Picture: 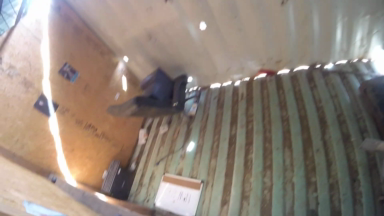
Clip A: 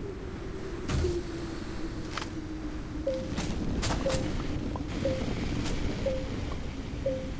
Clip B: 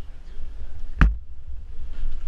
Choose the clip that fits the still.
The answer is B